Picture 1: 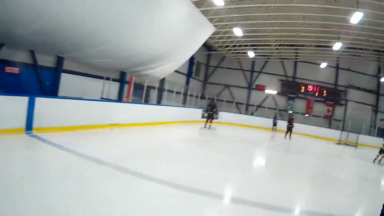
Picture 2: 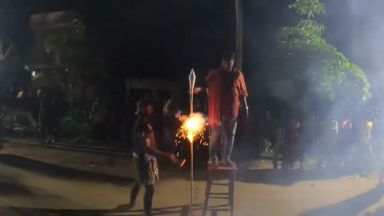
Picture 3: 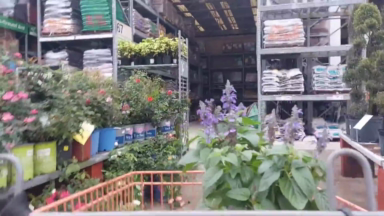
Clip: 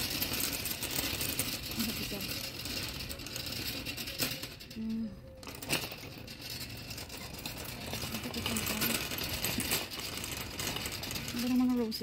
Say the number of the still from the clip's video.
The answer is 3